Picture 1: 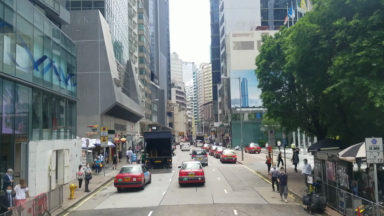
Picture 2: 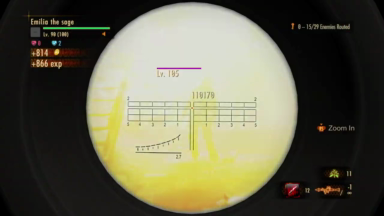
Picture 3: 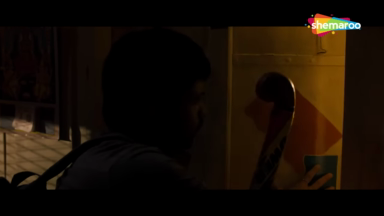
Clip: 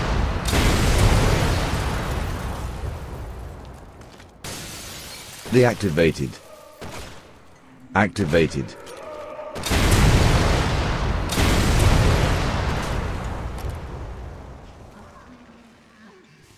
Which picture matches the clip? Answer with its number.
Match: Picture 2